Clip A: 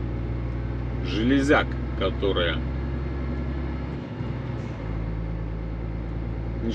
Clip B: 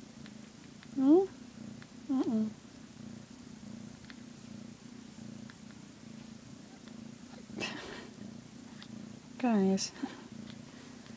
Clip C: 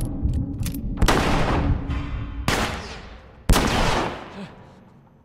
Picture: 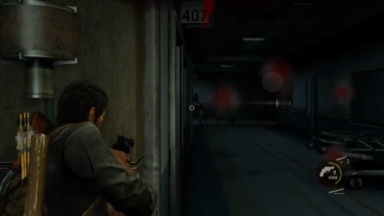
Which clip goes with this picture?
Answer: C